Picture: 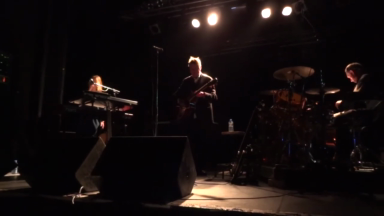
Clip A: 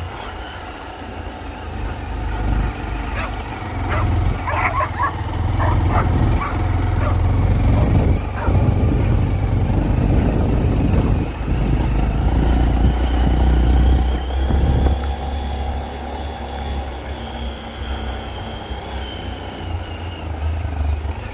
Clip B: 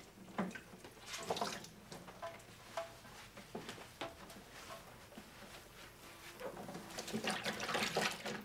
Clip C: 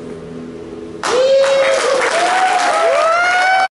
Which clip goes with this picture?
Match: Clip C